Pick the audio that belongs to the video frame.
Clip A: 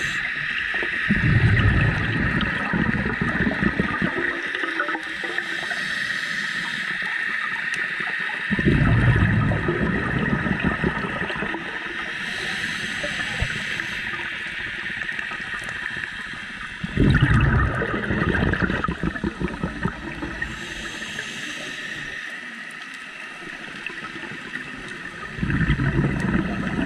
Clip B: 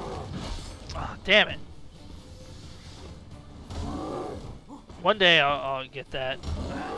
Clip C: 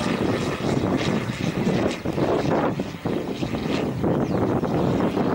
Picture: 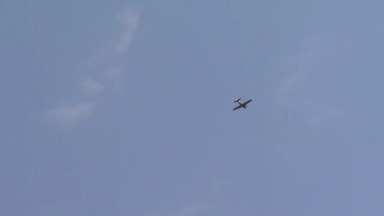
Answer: C